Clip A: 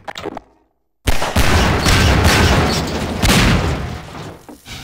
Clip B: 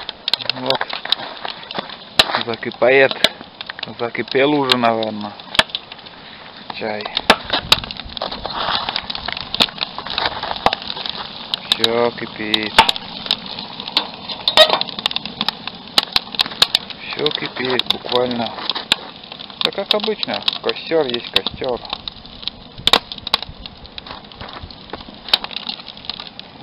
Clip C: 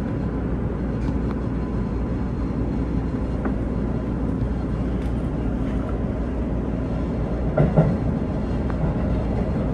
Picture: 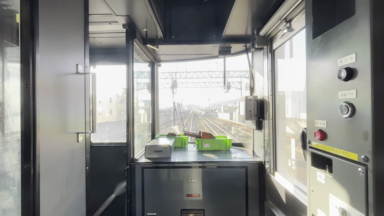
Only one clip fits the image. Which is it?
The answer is C